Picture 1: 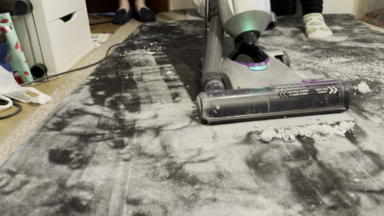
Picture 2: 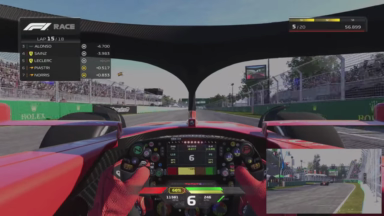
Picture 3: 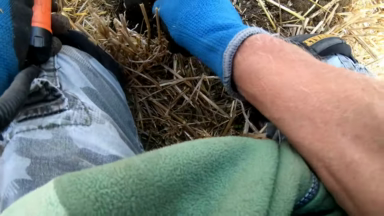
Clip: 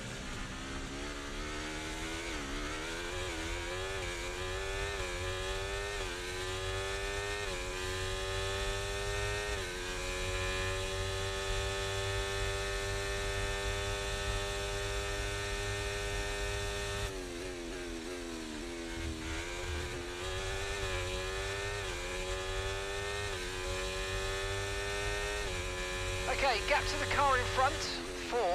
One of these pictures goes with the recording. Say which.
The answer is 2